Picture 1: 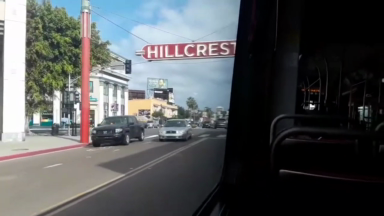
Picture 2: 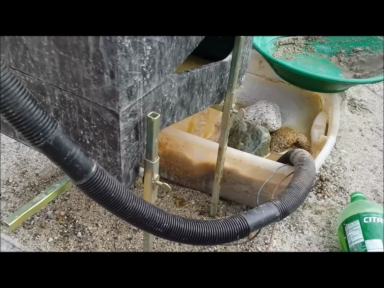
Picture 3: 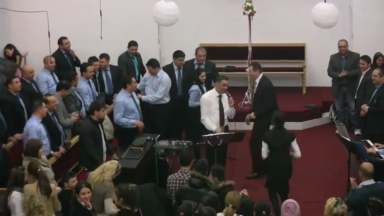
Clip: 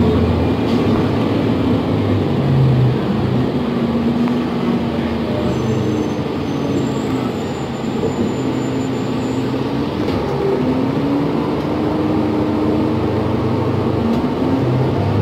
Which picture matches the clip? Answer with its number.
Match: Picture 1